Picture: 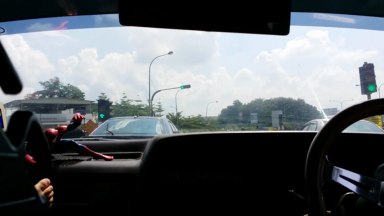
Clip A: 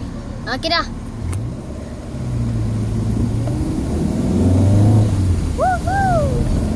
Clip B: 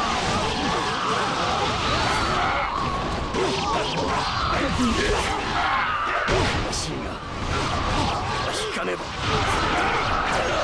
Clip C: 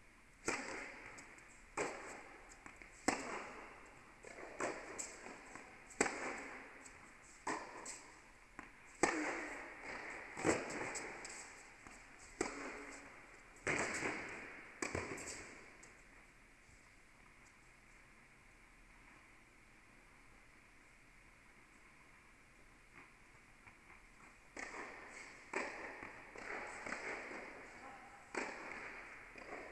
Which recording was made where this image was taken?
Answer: A